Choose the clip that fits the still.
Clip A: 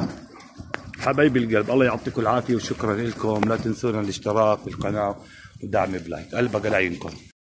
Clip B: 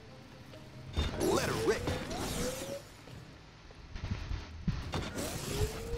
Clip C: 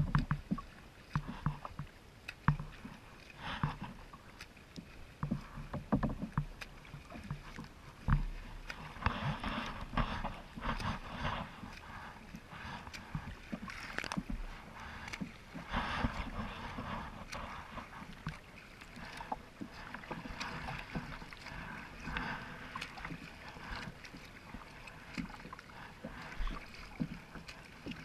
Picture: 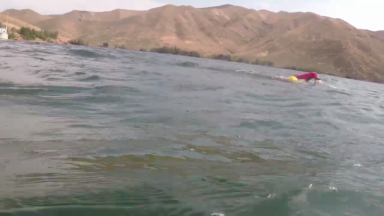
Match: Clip C